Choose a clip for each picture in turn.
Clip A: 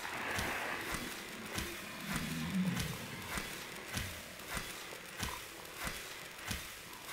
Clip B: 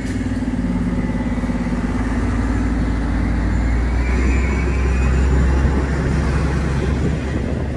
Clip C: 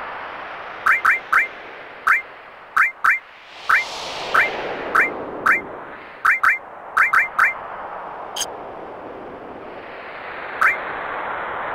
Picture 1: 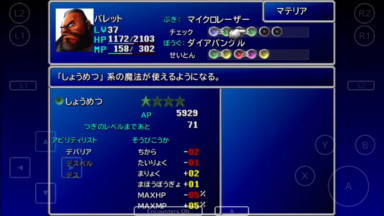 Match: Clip C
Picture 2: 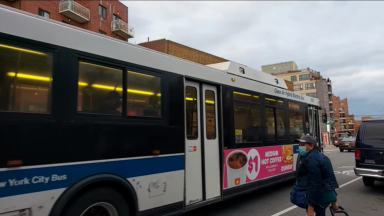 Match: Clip B